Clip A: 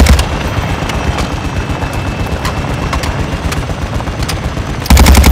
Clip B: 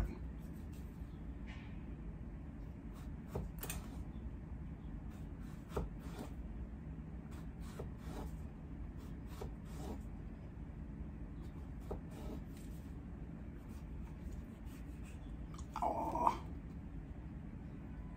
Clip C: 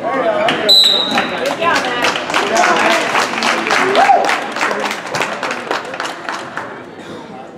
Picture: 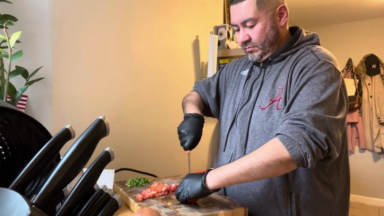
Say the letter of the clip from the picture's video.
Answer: B